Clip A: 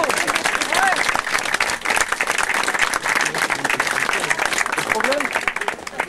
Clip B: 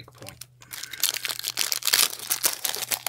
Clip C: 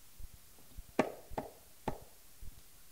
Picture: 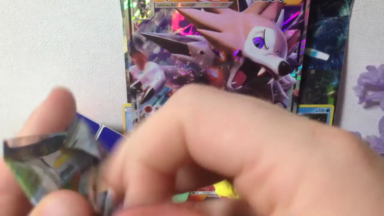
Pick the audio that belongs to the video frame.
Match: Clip B